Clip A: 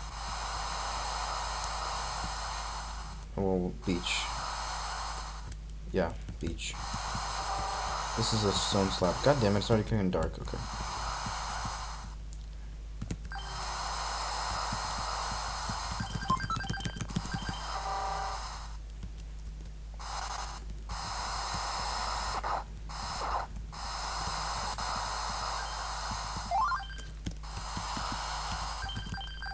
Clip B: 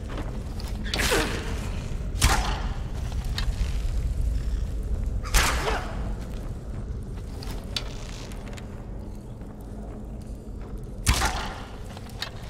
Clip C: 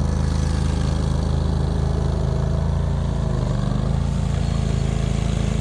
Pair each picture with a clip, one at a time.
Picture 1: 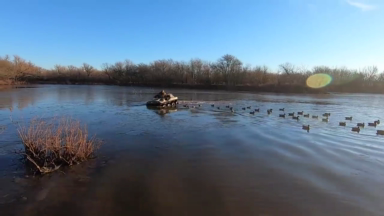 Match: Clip C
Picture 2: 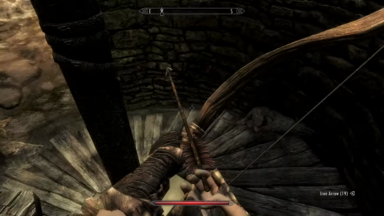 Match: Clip B